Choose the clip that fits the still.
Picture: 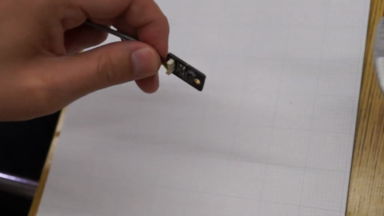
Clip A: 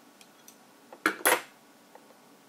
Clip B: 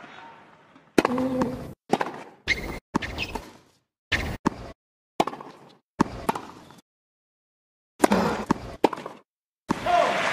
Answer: A